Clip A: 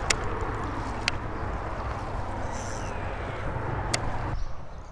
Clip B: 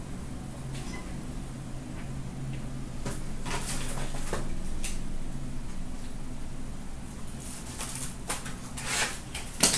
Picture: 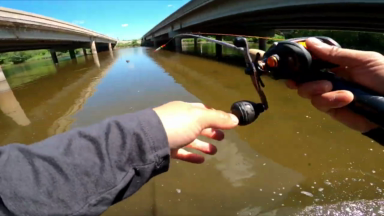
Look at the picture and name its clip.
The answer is A